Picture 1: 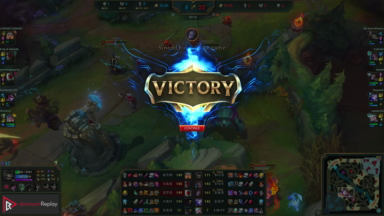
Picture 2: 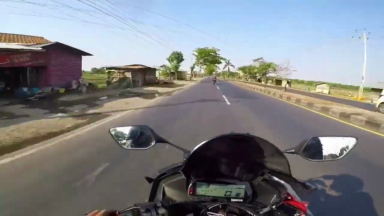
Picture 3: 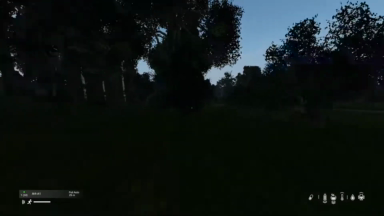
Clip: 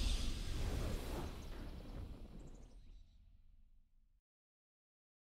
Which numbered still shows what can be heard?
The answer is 1